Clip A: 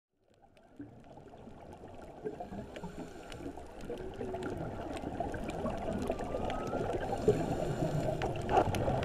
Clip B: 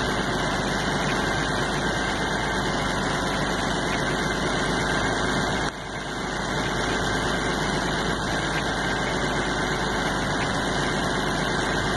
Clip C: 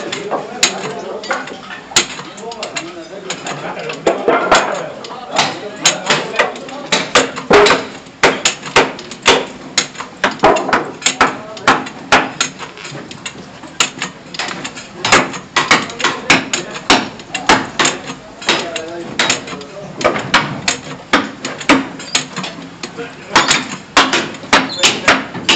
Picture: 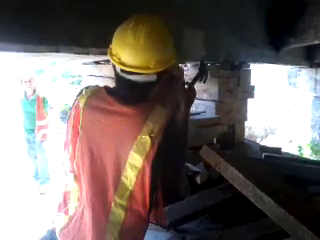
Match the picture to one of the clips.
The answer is C